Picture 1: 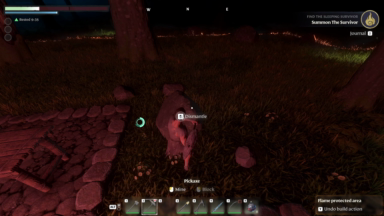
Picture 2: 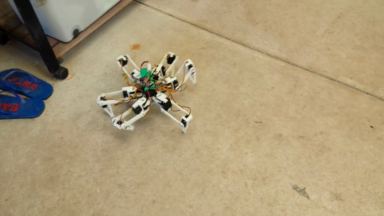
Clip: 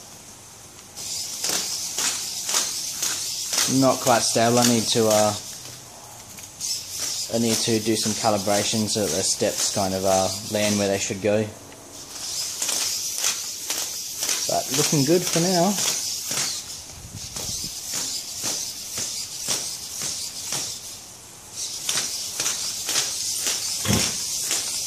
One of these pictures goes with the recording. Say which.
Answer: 2